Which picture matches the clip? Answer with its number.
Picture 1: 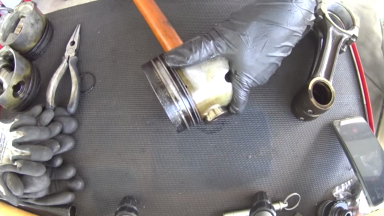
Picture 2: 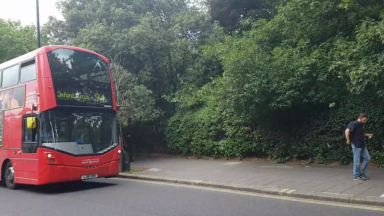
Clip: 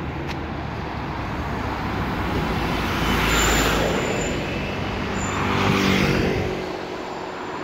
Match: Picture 2